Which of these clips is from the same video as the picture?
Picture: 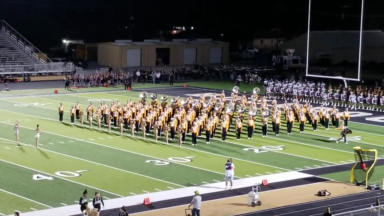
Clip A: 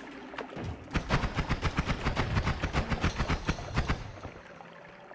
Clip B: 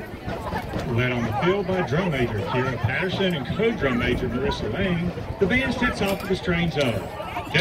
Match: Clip B